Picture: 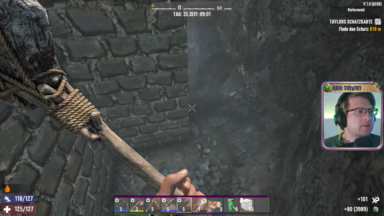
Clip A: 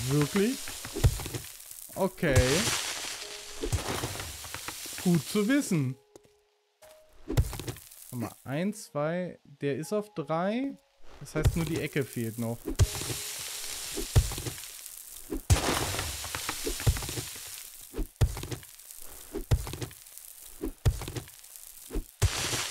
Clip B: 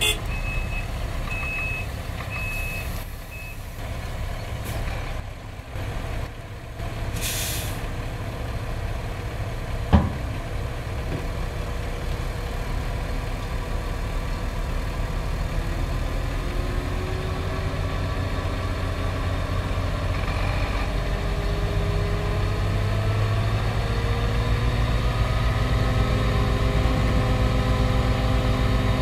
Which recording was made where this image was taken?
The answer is A